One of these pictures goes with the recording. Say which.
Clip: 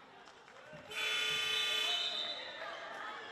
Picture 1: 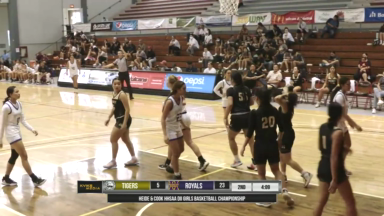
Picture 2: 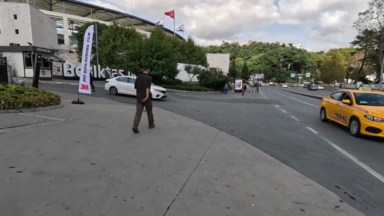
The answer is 1